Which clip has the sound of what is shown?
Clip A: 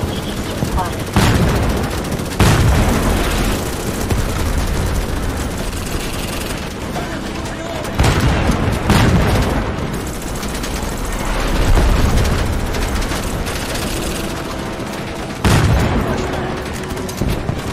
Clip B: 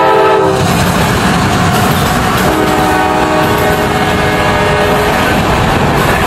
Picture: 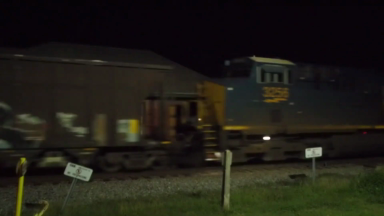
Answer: B